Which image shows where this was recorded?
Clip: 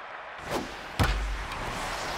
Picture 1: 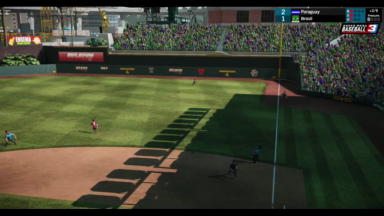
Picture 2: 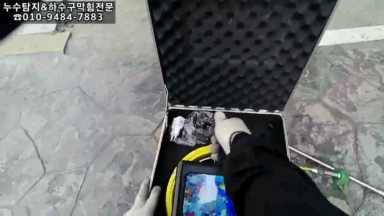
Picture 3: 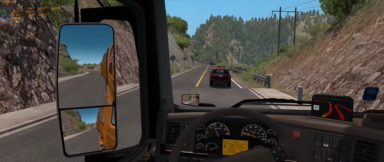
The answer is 1